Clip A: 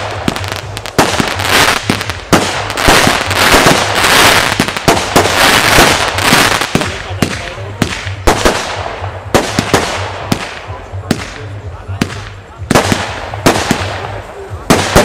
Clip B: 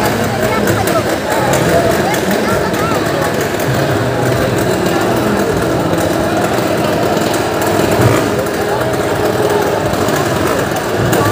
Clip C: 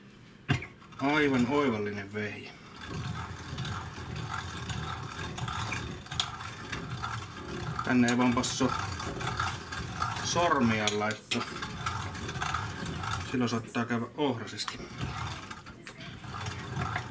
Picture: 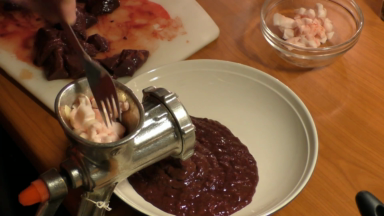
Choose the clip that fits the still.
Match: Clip C